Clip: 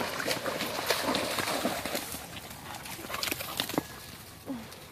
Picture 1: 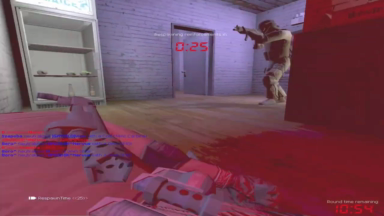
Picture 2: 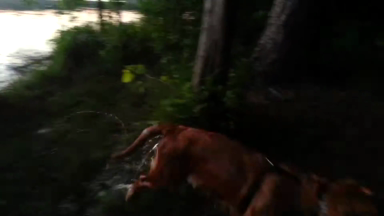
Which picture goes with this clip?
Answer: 2